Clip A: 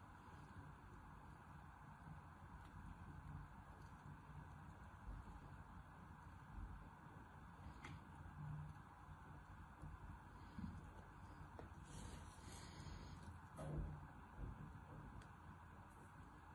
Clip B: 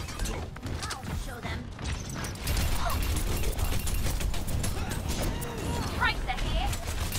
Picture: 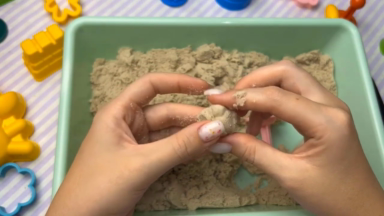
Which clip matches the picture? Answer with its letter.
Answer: A